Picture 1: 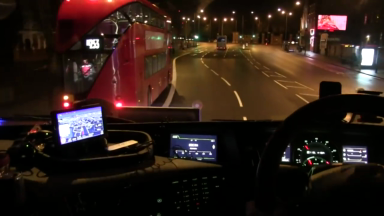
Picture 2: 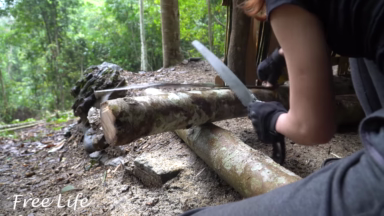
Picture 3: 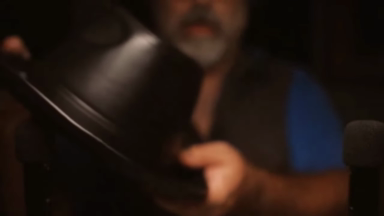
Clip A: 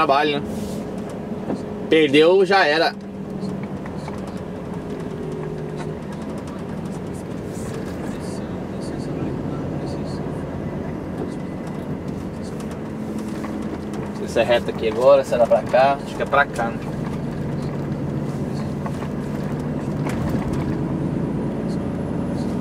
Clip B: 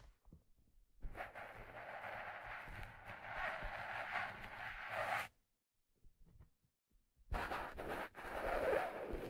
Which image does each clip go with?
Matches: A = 1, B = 3